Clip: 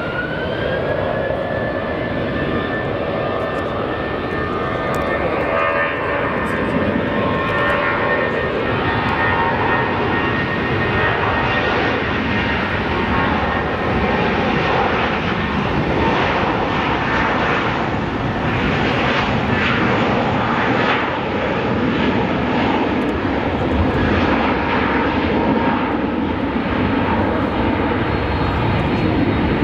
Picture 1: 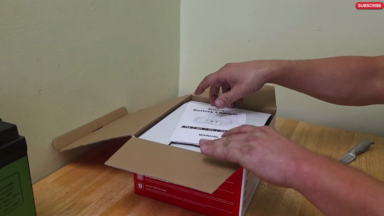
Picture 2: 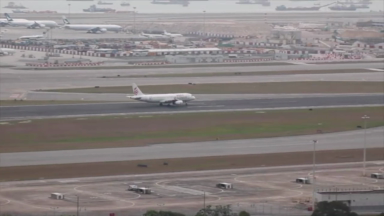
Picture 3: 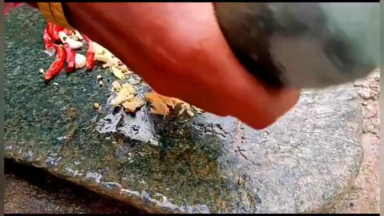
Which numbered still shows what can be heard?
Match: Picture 2